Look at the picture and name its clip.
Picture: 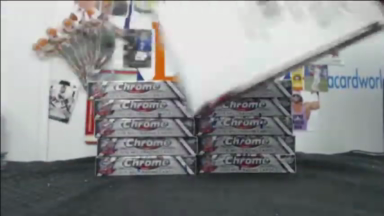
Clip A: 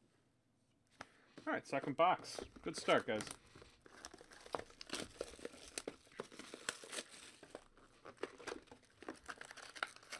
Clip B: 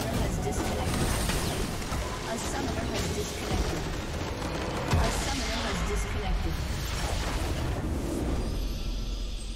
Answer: A